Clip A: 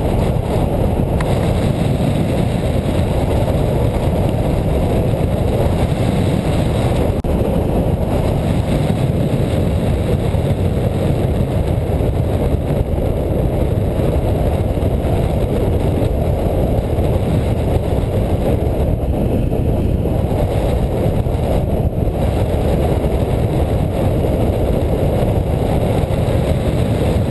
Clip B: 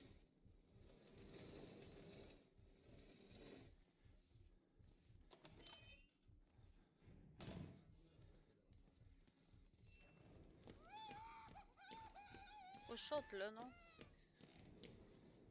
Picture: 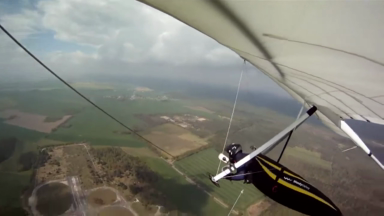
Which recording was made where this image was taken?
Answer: A